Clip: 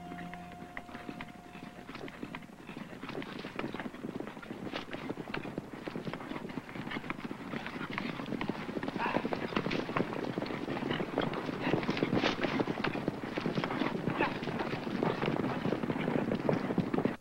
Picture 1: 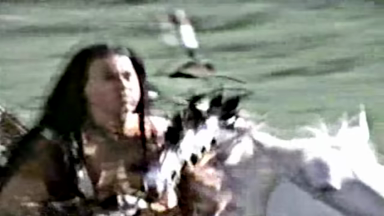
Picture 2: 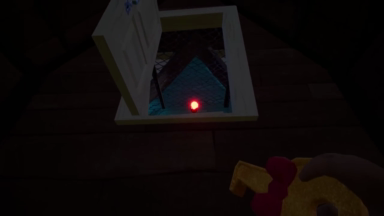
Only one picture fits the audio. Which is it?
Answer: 1